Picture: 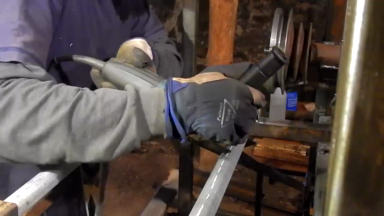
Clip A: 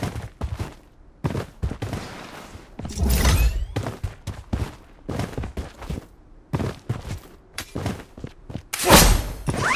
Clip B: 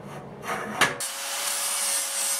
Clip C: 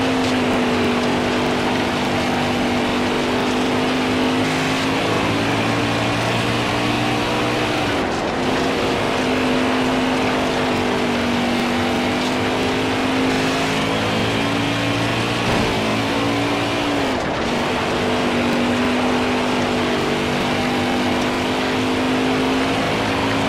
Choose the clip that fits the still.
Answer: B